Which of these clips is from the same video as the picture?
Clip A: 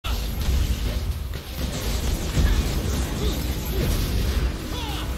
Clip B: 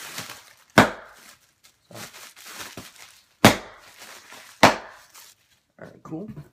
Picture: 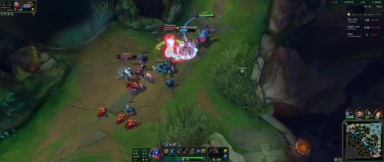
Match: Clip A